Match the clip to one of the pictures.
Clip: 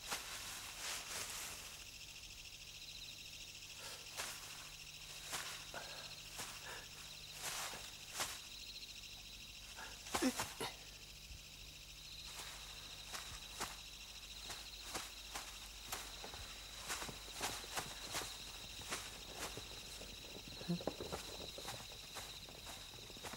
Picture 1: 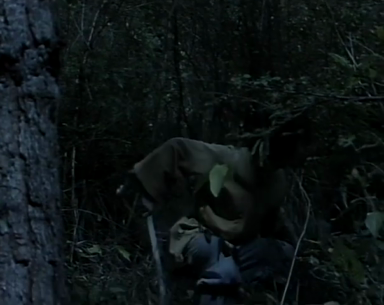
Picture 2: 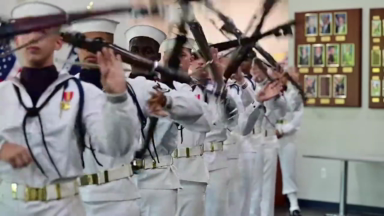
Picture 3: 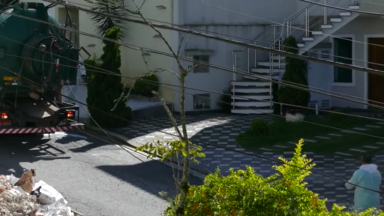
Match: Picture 1